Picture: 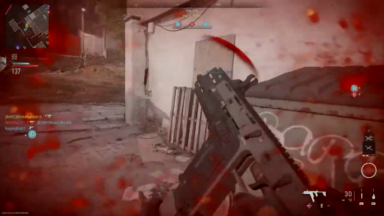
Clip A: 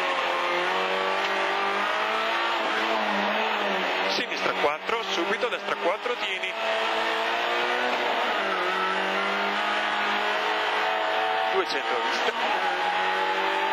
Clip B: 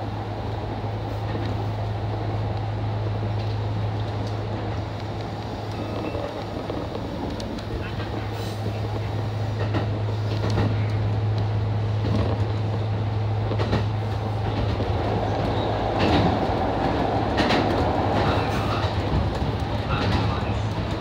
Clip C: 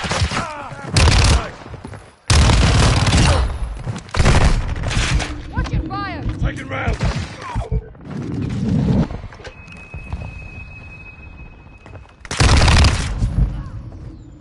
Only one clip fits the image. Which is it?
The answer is C